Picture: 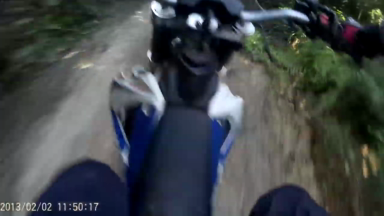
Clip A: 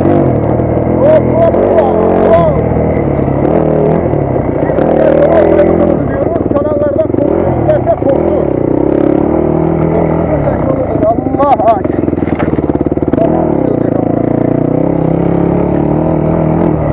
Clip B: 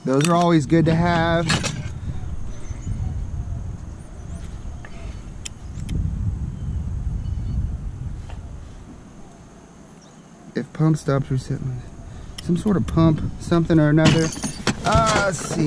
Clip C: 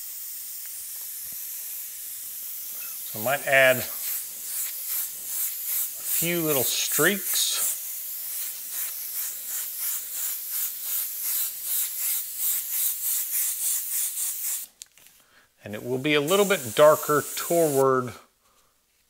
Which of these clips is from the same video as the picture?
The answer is A